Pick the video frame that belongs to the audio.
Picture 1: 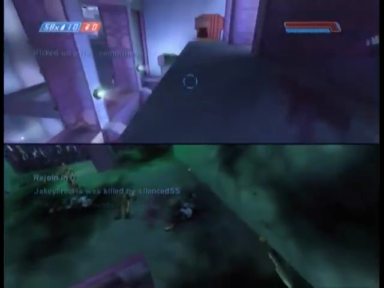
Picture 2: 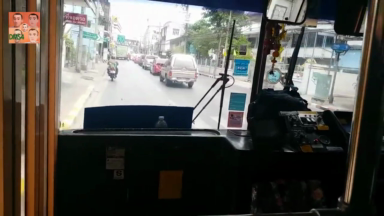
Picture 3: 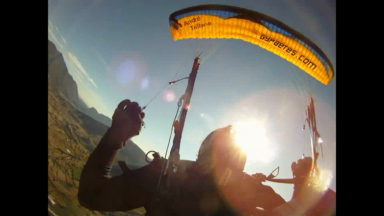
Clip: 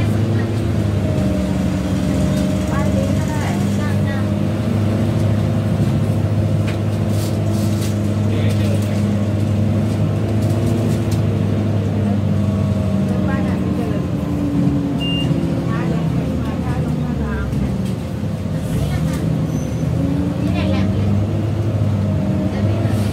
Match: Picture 2